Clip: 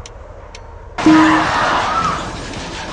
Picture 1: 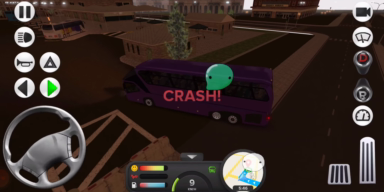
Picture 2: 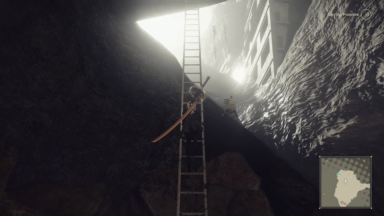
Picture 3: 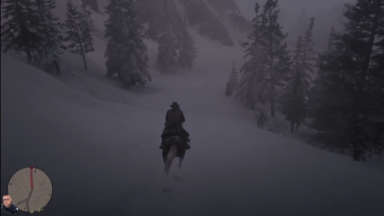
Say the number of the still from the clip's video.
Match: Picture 1